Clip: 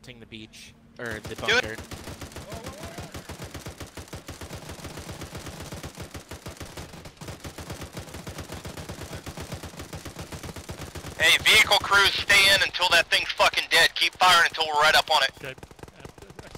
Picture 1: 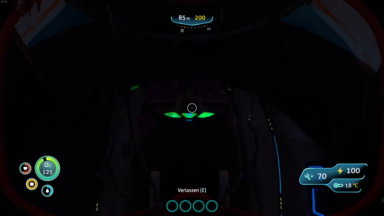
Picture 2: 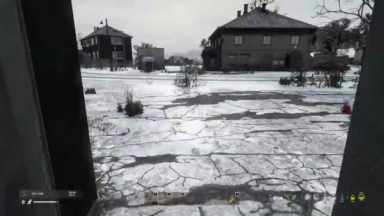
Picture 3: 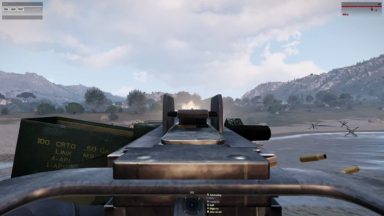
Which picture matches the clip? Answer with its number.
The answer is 3